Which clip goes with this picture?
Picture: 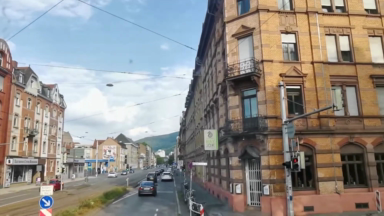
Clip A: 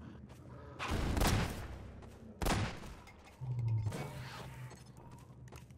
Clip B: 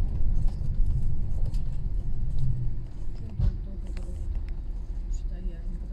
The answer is B